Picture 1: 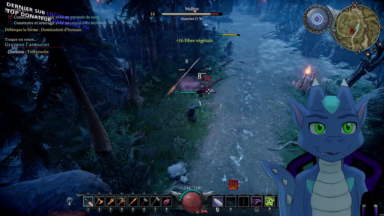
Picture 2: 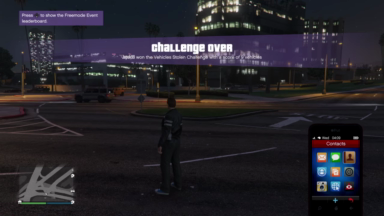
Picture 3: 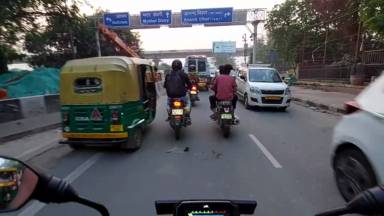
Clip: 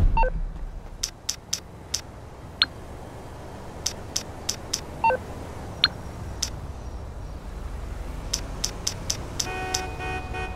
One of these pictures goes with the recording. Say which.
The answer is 2